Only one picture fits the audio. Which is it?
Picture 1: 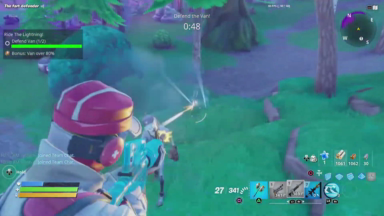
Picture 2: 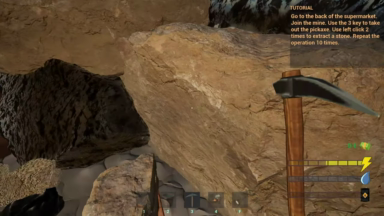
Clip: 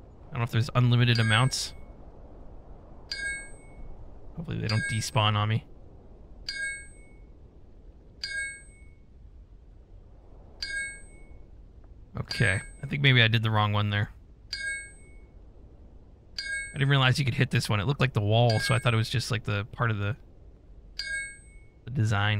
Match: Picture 2